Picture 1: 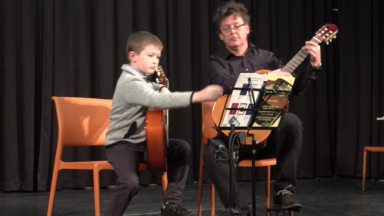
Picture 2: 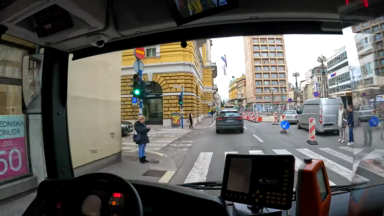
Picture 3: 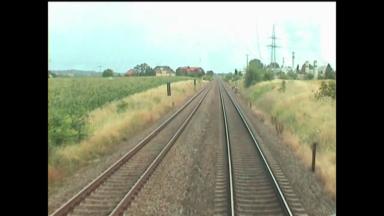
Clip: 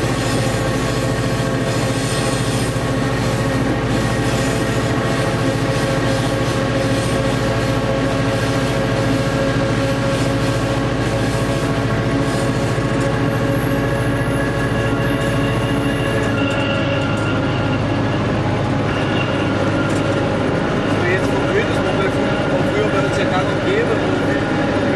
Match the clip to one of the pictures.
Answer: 3